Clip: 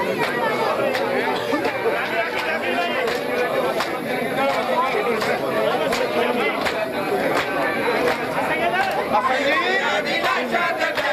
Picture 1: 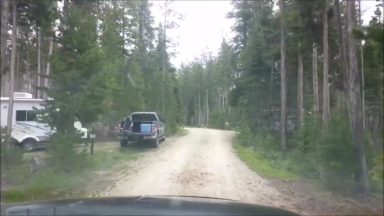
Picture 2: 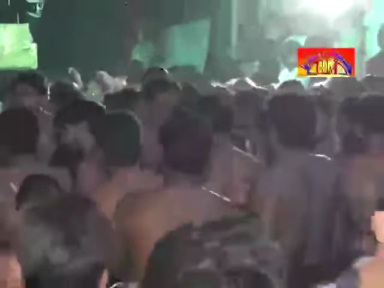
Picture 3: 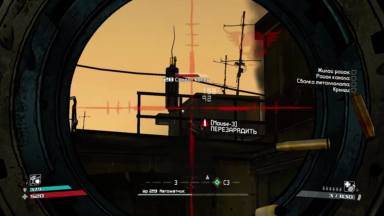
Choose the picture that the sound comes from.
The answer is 2